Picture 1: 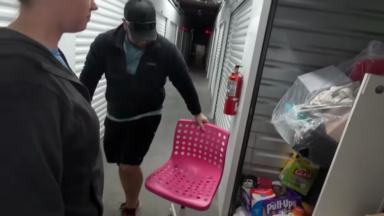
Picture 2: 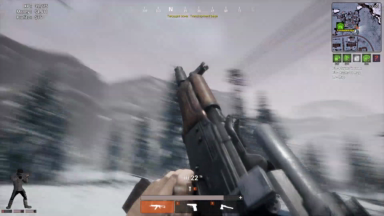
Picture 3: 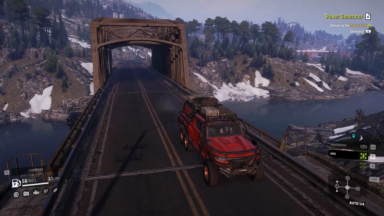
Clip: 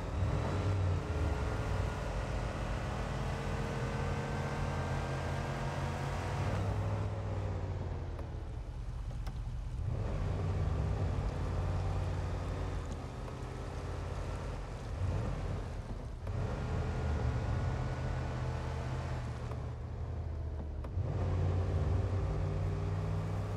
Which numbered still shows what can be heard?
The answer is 3